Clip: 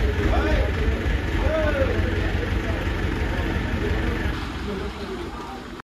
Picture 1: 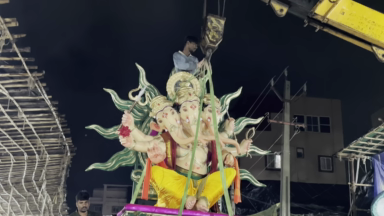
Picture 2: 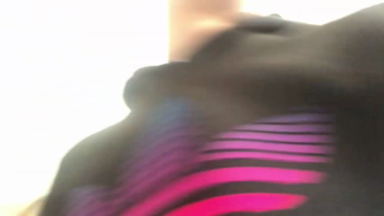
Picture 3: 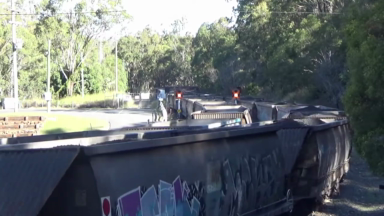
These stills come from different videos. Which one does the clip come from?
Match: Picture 1